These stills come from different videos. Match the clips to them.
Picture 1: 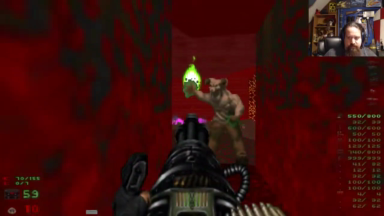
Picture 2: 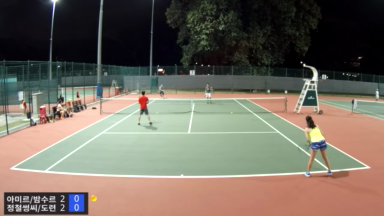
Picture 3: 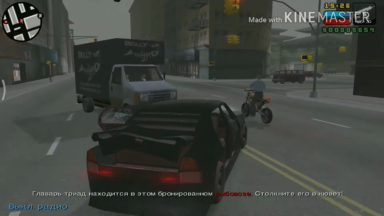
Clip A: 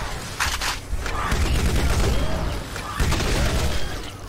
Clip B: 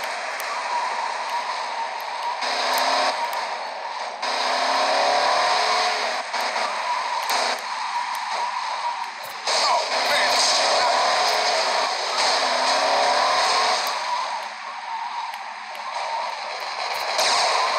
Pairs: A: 1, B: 3